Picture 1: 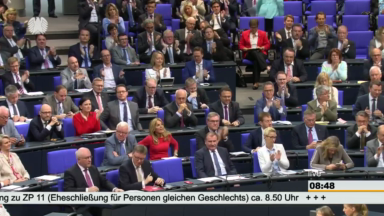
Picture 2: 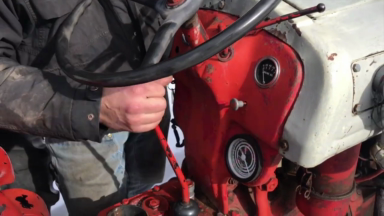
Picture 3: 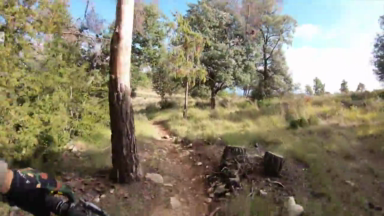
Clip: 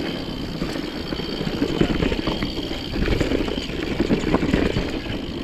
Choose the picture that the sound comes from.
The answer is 3